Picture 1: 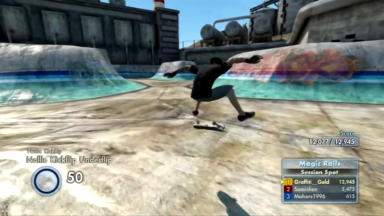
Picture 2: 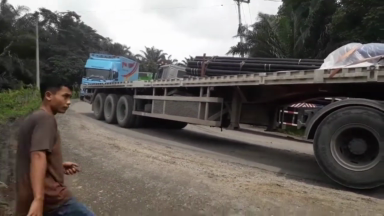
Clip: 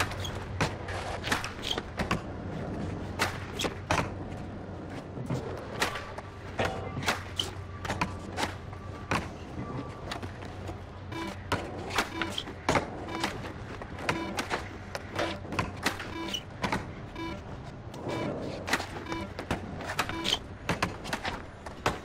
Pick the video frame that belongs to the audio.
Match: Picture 1